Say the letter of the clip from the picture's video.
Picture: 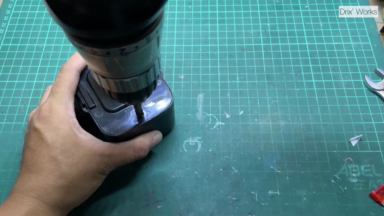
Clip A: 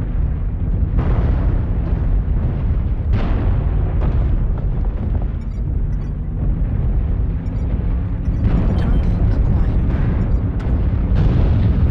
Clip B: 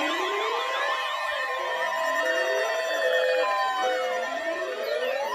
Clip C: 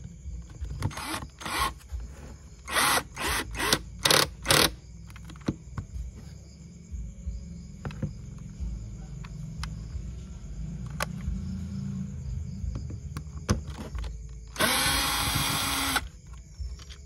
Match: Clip C